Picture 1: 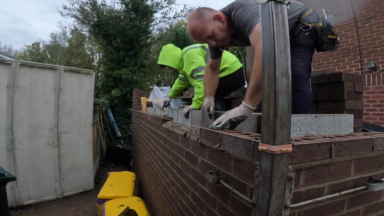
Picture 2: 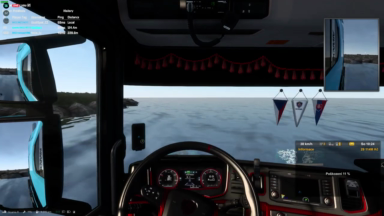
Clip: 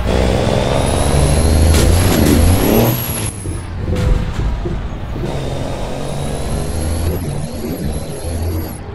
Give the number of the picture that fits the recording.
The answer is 2